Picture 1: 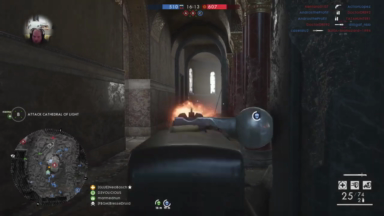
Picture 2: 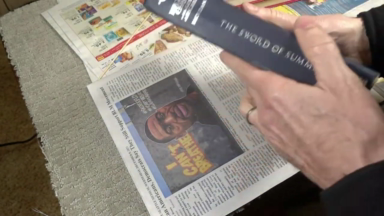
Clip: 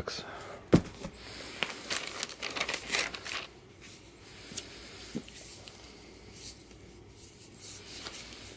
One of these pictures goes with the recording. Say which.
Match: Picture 2